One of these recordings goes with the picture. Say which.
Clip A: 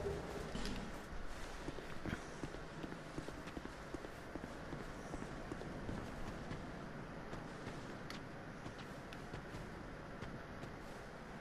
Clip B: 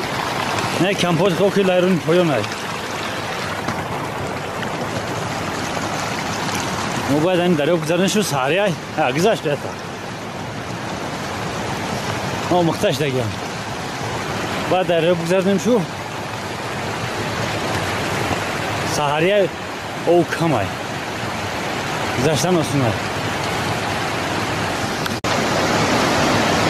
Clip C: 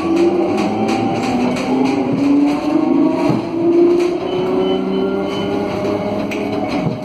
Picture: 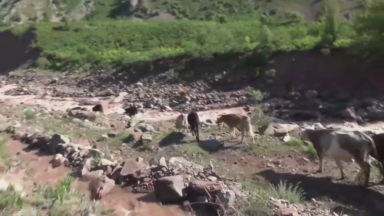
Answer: B